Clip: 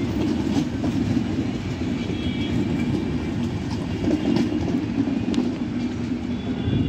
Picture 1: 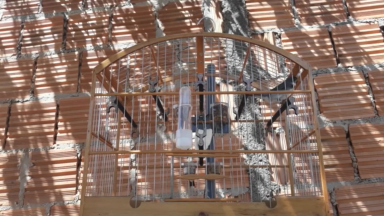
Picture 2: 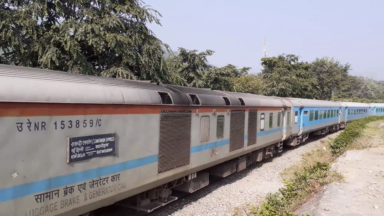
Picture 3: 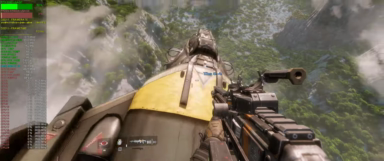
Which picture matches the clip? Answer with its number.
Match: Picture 2